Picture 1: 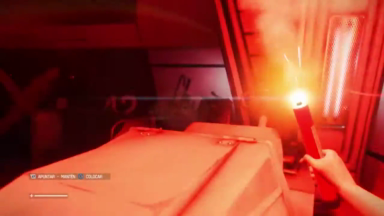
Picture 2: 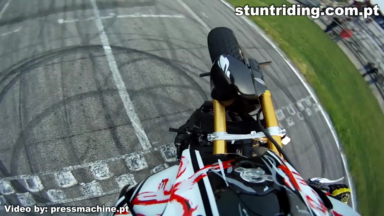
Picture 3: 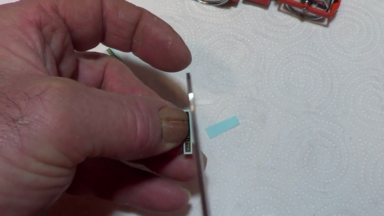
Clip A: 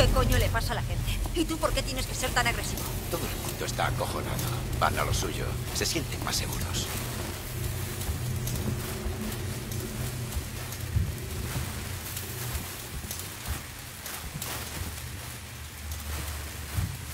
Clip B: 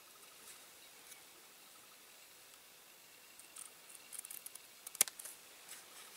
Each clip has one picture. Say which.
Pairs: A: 1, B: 3